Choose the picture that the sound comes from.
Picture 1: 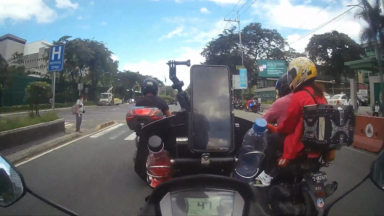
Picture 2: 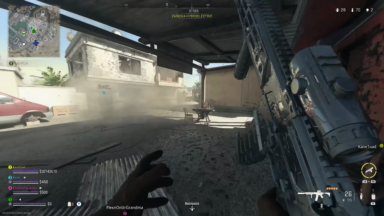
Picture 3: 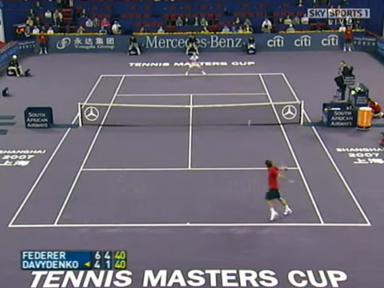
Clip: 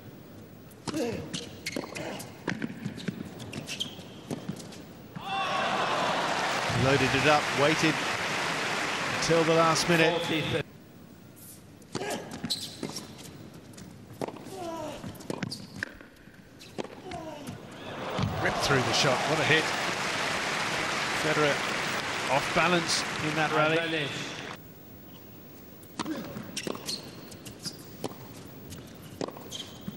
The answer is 3